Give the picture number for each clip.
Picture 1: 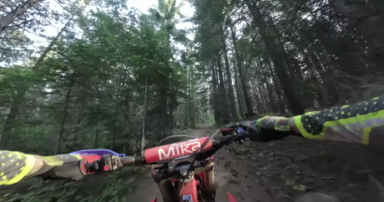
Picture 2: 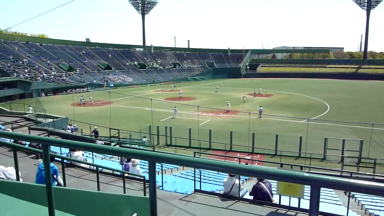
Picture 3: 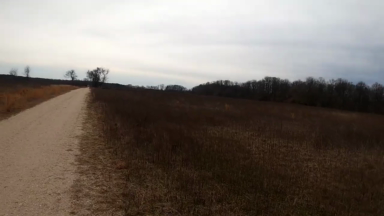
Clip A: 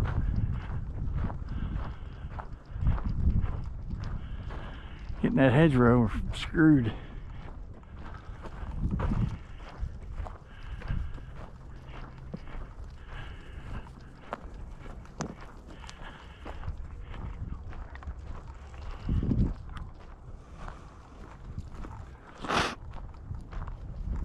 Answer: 3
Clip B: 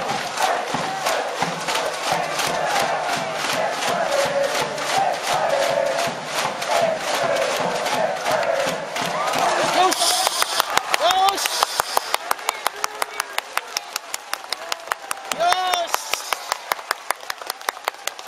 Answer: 2